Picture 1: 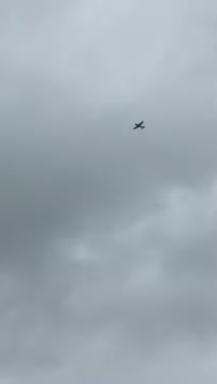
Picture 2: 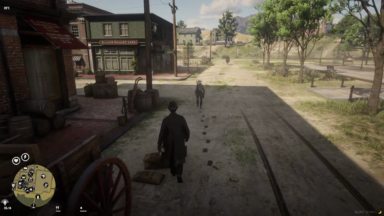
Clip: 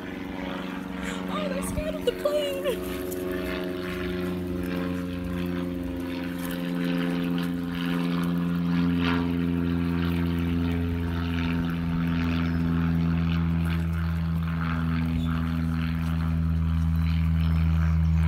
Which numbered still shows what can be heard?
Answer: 1